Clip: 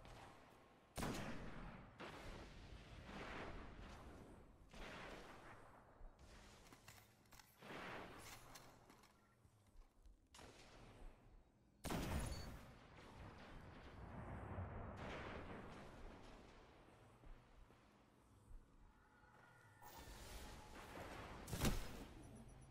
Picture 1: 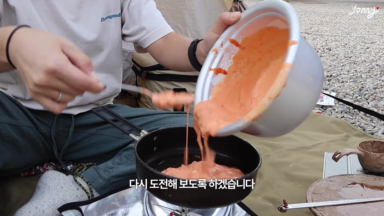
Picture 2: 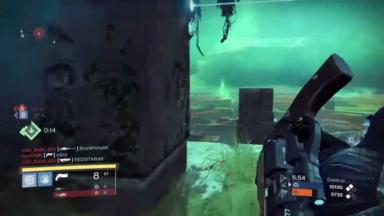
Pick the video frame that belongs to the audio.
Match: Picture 2